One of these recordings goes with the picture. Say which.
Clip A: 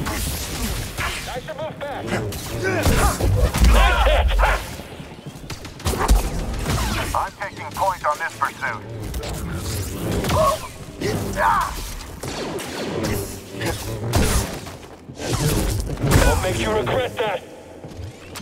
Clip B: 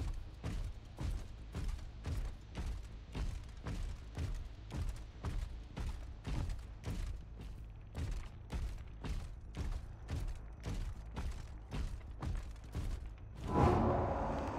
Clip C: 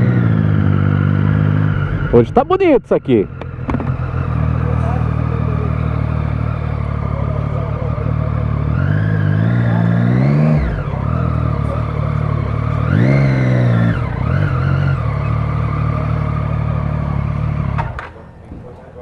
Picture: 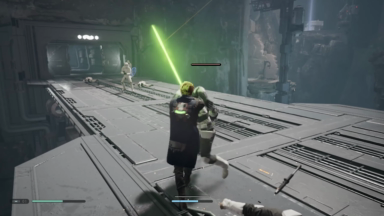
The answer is A